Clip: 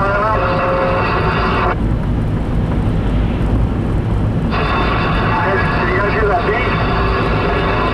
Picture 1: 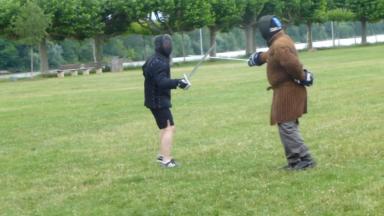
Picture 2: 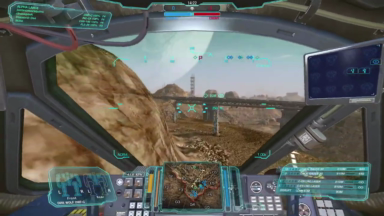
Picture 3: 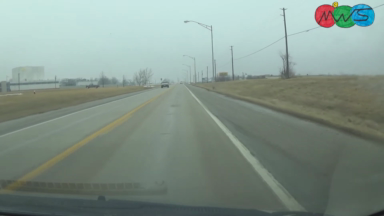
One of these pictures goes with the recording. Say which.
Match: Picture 3